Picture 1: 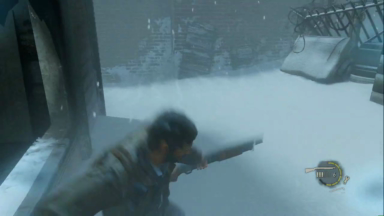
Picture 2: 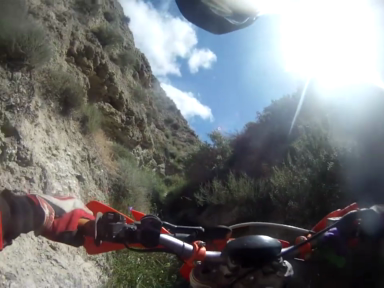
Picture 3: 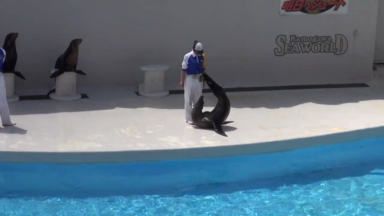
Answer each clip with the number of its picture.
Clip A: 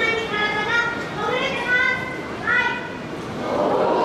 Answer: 3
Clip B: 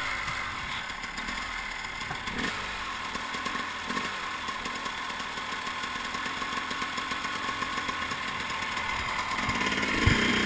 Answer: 2